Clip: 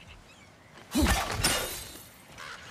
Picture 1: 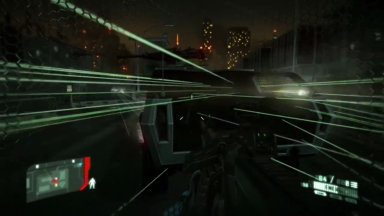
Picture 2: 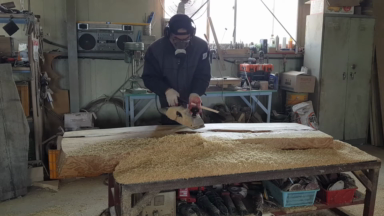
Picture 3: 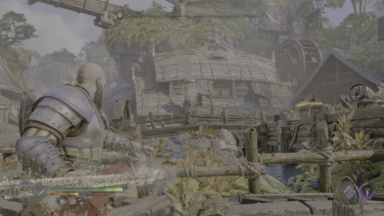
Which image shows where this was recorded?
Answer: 3